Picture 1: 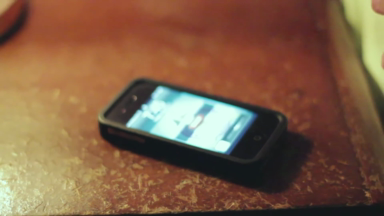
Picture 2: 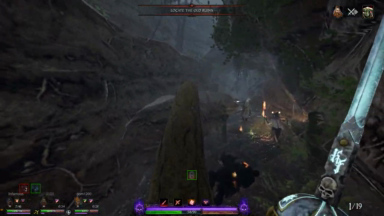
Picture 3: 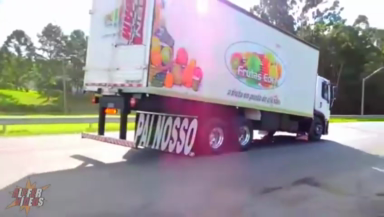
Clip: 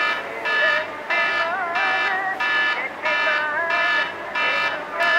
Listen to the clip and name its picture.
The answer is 1